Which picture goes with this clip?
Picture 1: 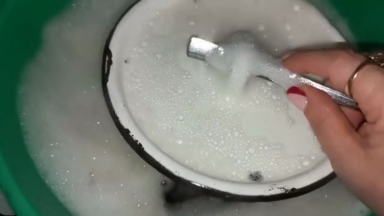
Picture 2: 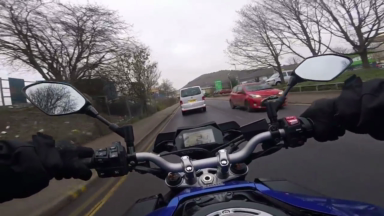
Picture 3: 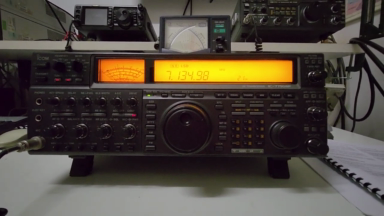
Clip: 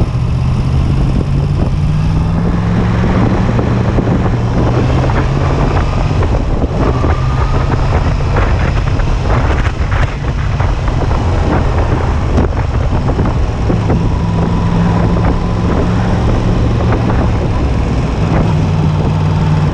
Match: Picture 2